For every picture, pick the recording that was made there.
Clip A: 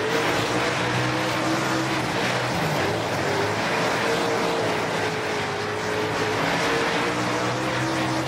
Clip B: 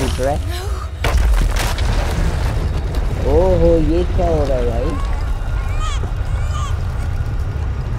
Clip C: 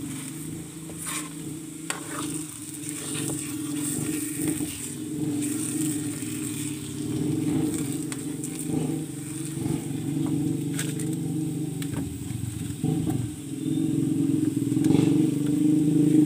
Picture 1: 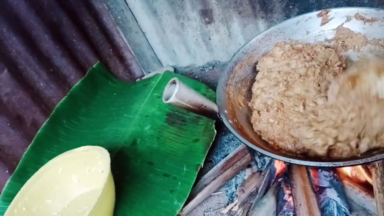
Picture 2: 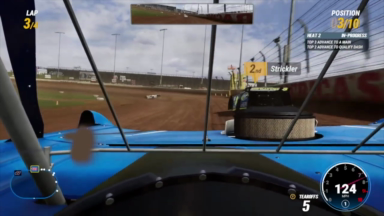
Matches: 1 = C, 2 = A